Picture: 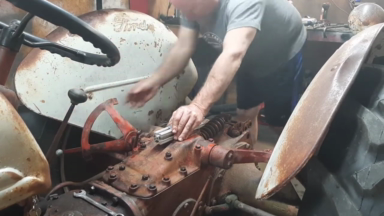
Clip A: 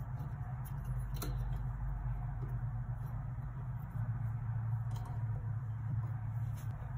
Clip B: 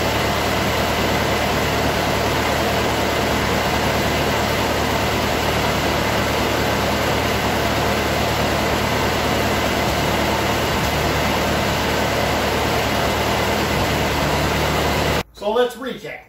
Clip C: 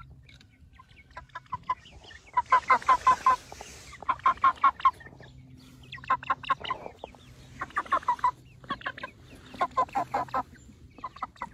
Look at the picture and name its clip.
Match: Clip B